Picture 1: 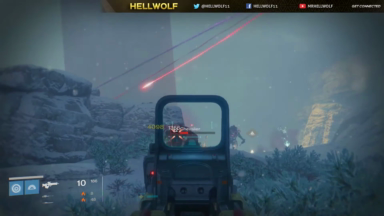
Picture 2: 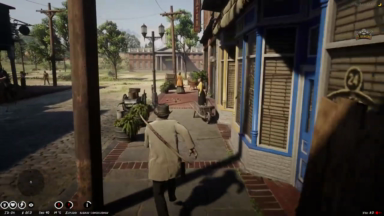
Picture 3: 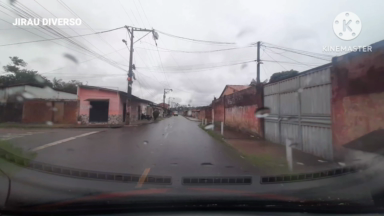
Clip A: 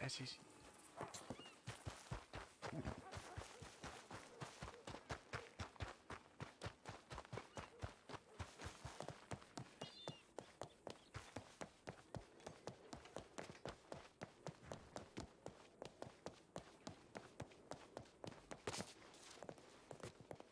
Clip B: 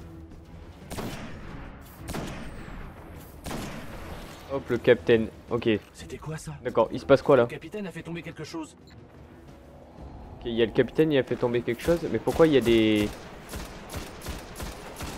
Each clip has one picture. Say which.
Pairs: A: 2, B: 1